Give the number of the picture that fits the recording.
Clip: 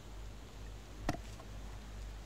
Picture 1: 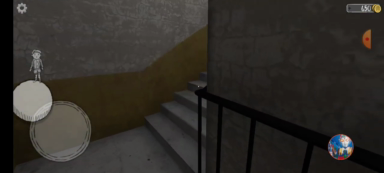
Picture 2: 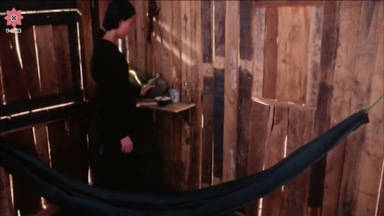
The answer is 2